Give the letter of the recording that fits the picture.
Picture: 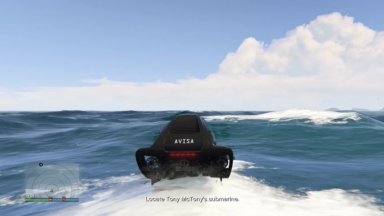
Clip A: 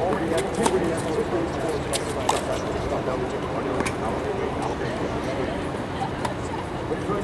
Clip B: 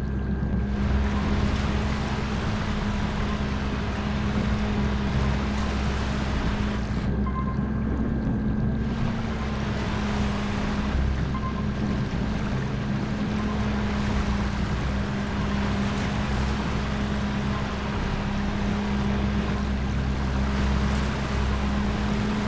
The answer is B